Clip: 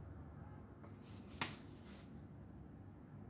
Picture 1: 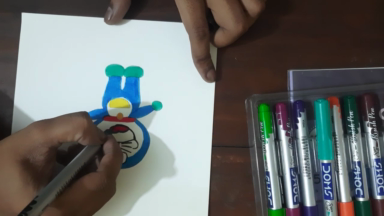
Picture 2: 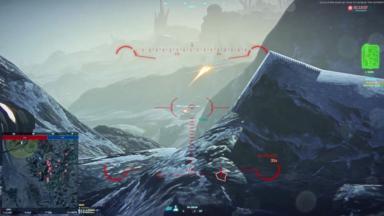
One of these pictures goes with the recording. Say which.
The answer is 1